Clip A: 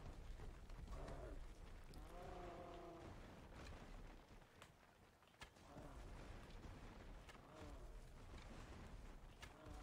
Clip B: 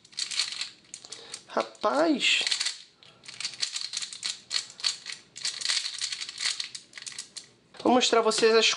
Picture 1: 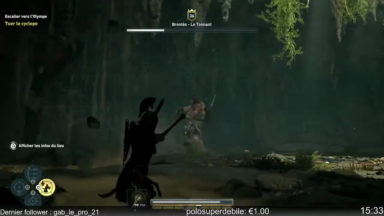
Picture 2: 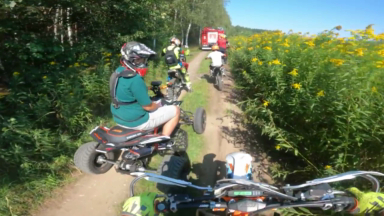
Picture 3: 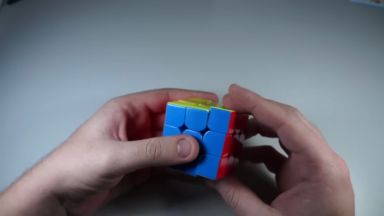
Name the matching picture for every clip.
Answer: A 1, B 3